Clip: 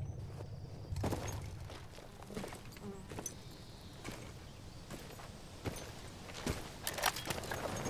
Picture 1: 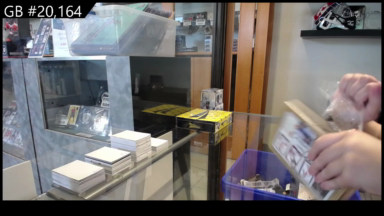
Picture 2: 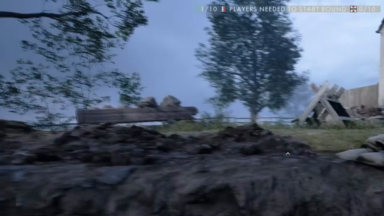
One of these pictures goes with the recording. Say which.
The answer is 2